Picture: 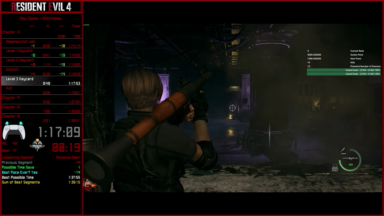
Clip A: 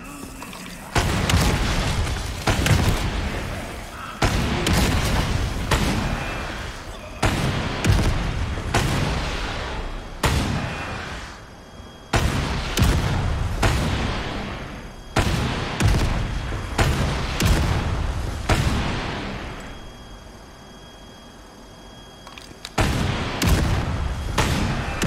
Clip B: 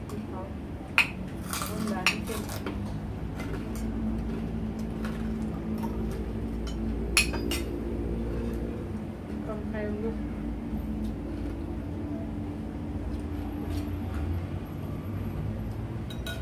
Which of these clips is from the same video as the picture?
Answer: A